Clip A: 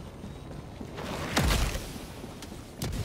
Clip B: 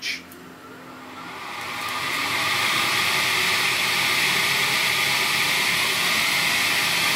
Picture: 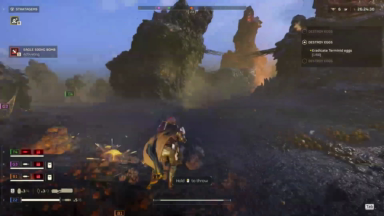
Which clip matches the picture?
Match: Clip A